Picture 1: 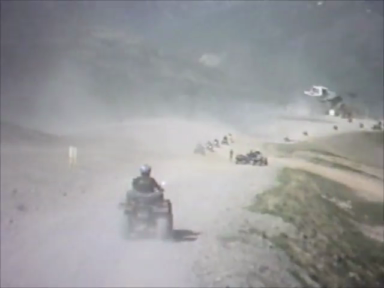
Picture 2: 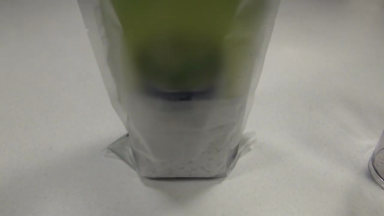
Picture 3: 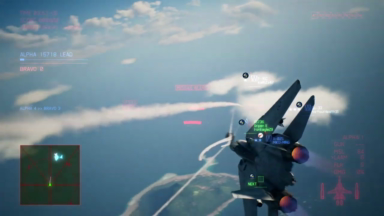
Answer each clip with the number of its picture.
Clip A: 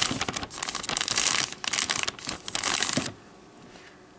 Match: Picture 2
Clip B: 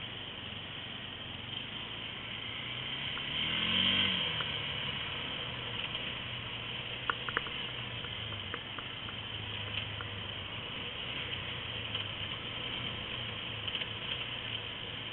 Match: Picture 1